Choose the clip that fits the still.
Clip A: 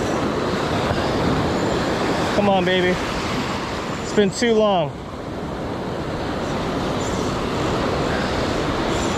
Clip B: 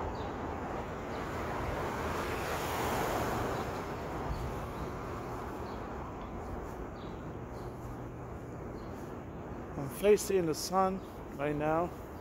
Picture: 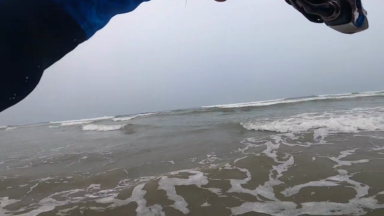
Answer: A